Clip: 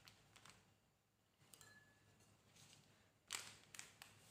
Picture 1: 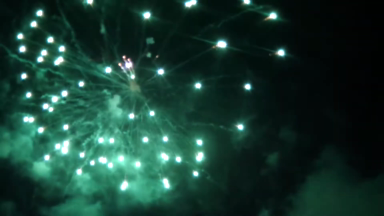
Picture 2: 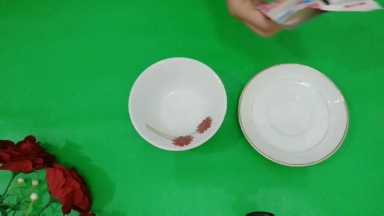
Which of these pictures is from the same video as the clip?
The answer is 2